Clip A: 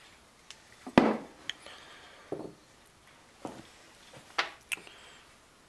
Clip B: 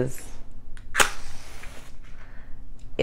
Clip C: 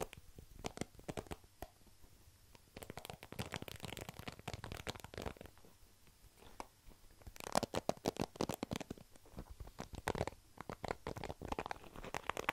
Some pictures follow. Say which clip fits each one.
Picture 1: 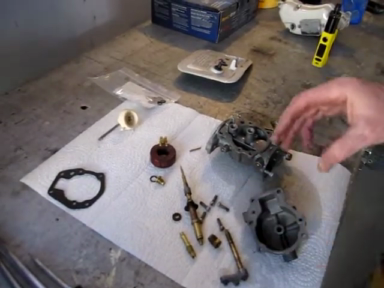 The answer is A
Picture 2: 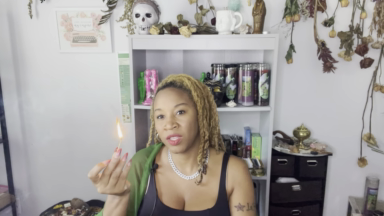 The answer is B